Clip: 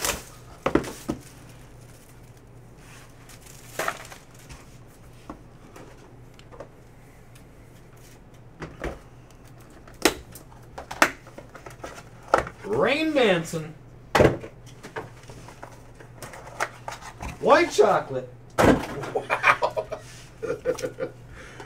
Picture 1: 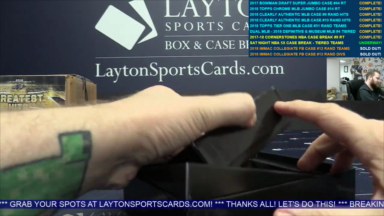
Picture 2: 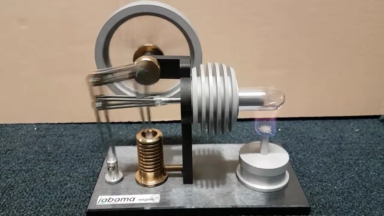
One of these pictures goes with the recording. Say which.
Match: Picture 1